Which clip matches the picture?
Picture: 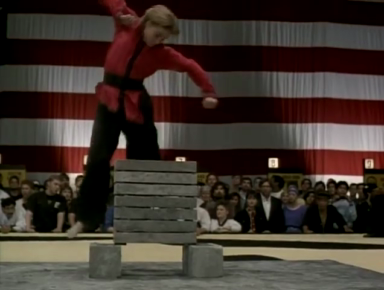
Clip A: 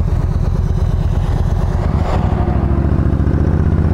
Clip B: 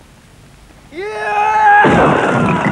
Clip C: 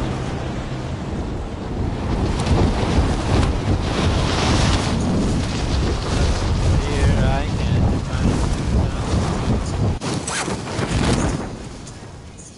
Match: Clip B